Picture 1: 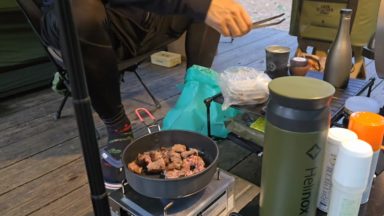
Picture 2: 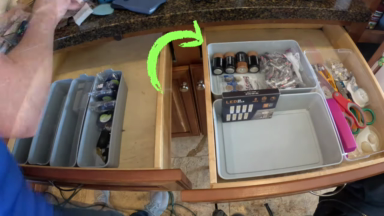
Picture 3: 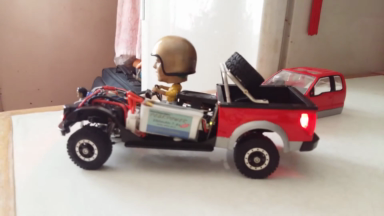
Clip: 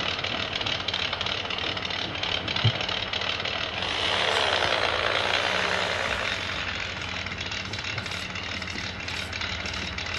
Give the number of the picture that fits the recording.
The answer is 3